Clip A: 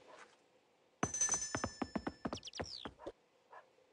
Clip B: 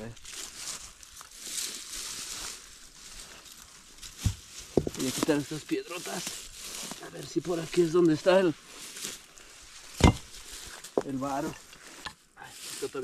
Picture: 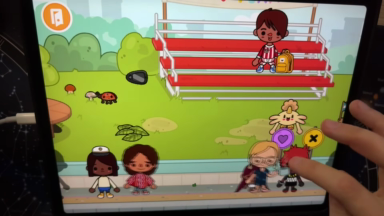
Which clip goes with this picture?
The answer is A